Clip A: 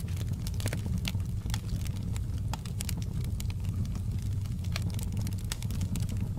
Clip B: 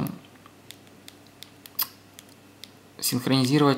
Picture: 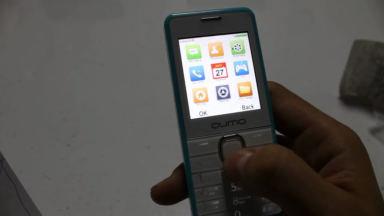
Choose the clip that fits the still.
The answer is B